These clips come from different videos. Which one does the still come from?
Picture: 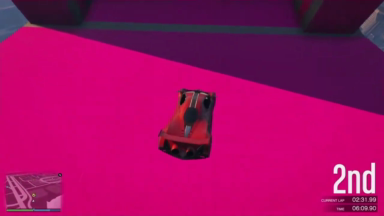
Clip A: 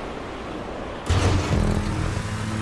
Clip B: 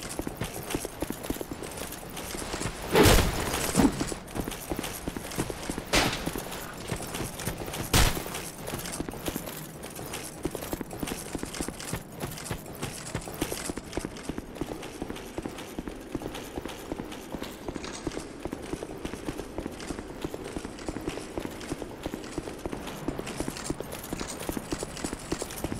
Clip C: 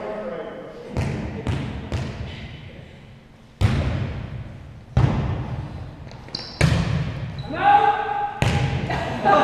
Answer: A